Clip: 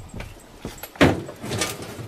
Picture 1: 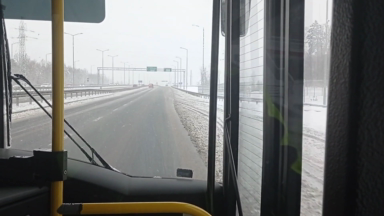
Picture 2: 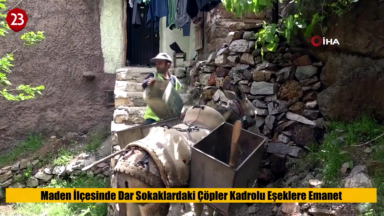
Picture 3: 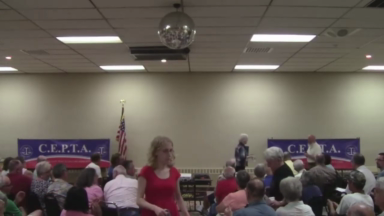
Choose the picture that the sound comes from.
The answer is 2